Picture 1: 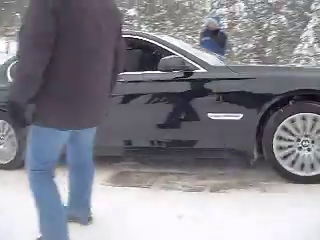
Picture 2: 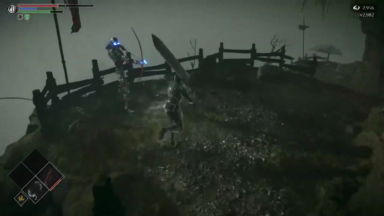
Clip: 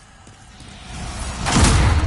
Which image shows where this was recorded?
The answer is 2